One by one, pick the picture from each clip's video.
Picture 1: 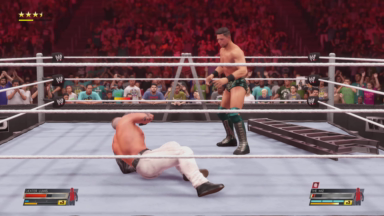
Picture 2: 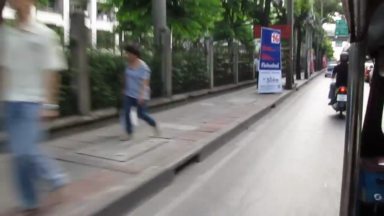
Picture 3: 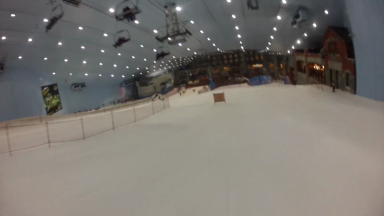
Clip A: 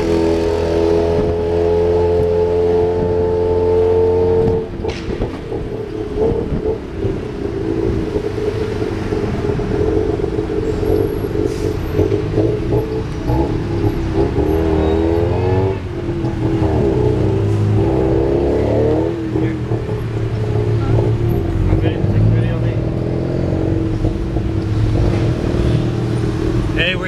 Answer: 2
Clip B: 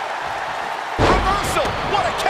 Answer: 1